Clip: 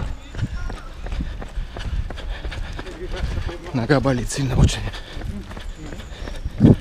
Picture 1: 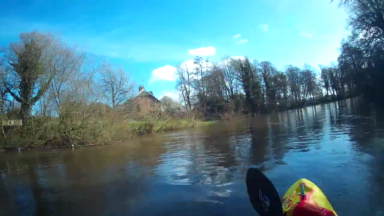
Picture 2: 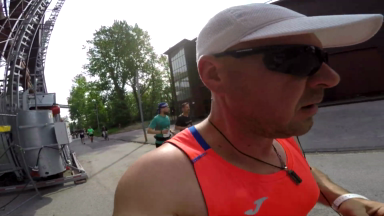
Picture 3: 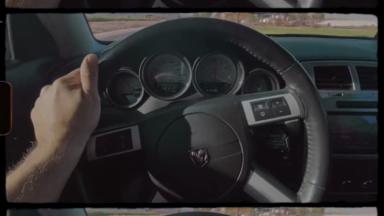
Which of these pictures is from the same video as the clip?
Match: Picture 2